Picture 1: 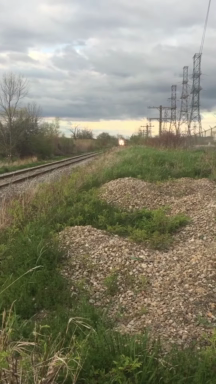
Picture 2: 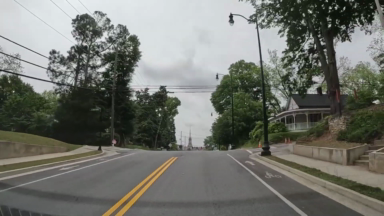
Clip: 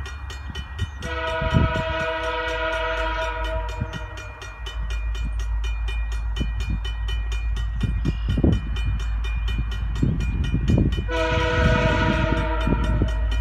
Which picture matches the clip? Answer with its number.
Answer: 1